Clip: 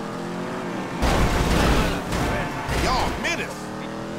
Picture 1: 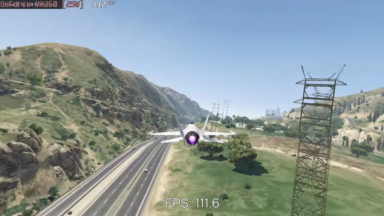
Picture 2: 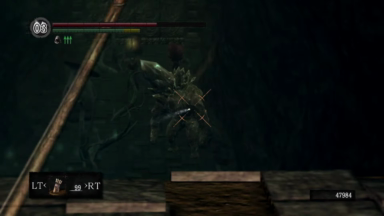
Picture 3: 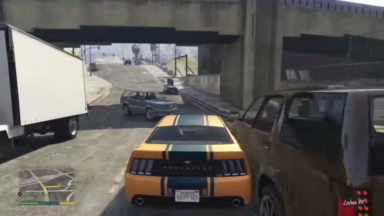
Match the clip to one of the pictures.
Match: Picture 3